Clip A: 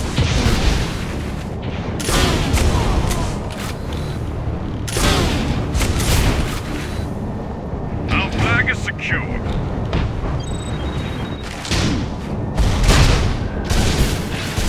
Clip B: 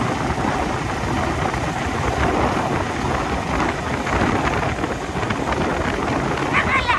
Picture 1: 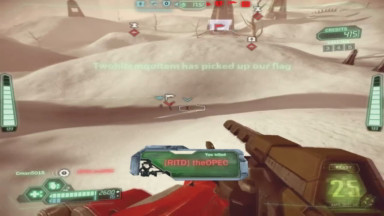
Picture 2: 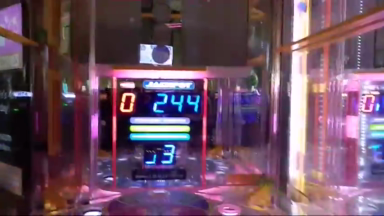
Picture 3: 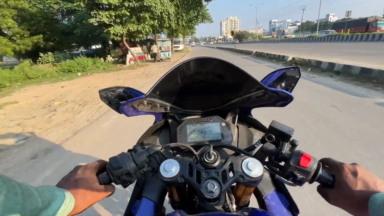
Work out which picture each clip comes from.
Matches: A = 1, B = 3